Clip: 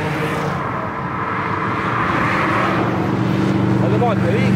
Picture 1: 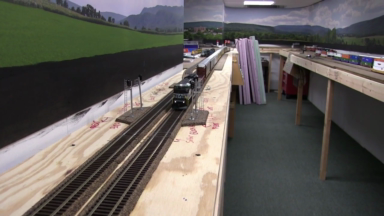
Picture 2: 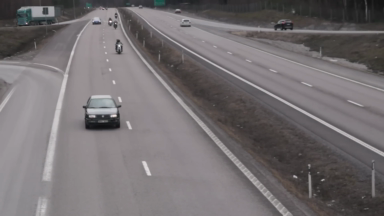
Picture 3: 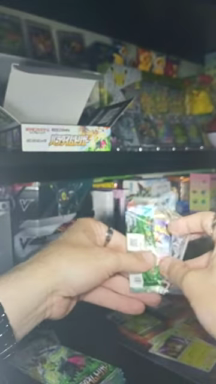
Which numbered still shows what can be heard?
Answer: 2